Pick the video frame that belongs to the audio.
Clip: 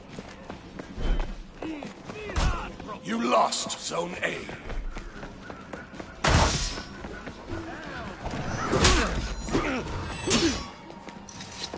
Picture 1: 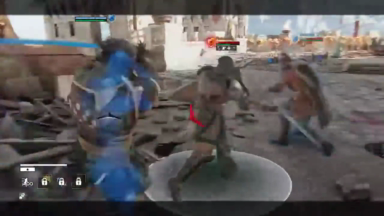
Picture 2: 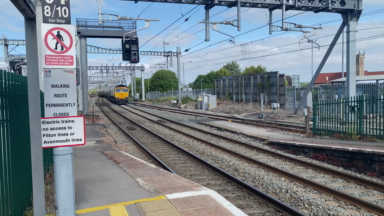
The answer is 1